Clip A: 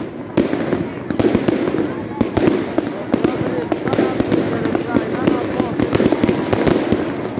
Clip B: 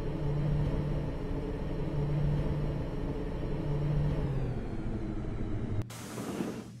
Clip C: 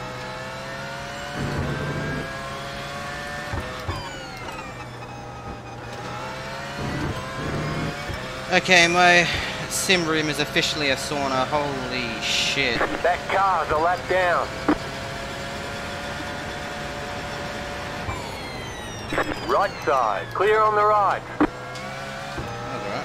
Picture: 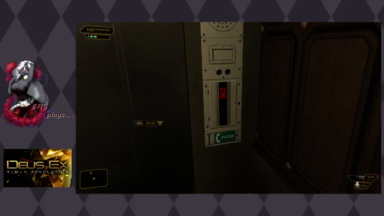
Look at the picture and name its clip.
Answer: B